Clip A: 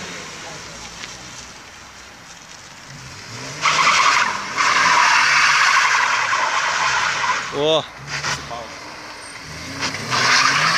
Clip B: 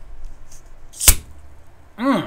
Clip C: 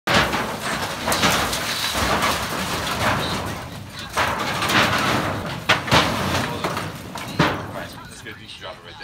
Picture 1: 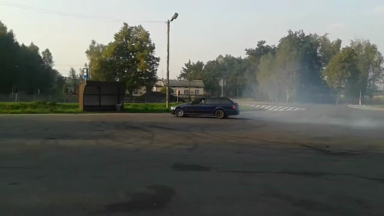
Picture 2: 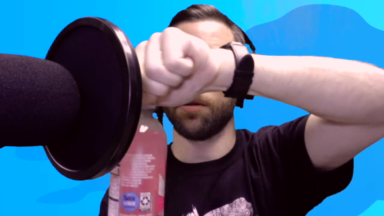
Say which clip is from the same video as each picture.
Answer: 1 A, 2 B